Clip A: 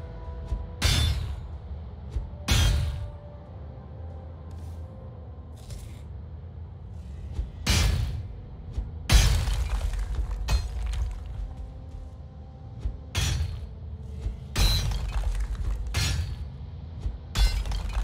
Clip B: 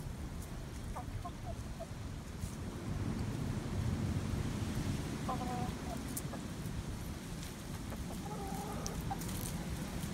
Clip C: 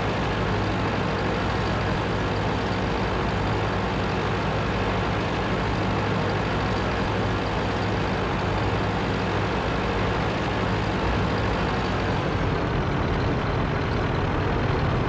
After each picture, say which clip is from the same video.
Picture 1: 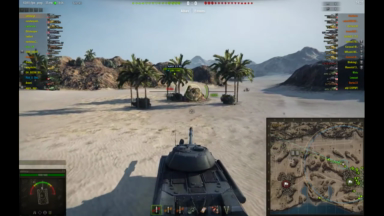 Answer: C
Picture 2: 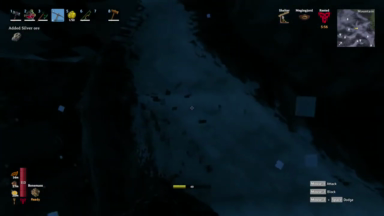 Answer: A